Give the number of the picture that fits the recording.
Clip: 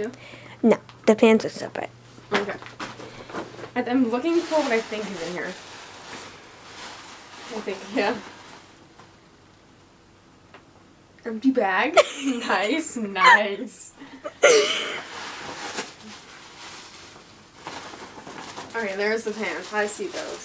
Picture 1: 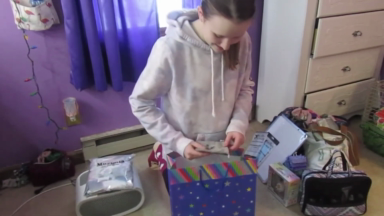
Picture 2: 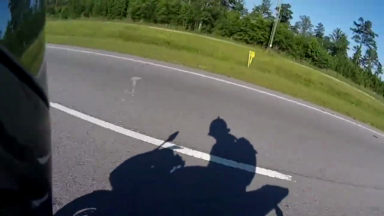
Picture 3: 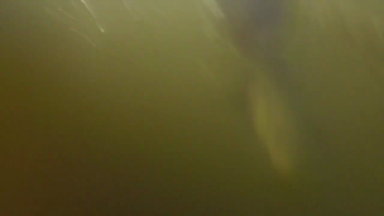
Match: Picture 1